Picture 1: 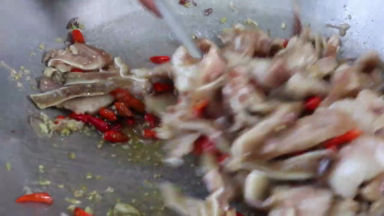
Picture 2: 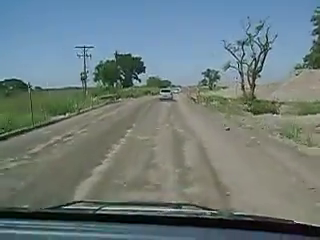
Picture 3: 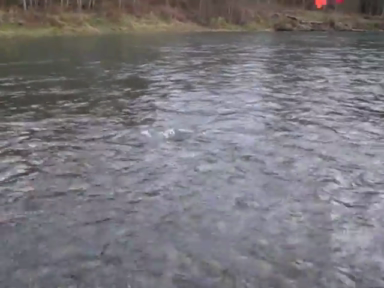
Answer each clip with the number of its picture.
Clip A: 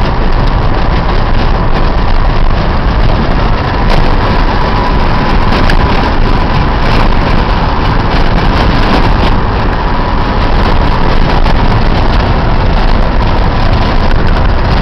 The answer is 2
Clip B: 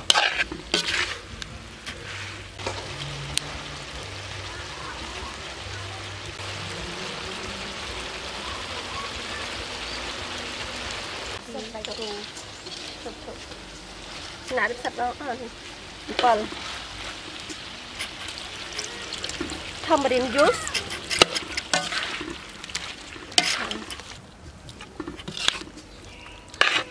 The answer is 1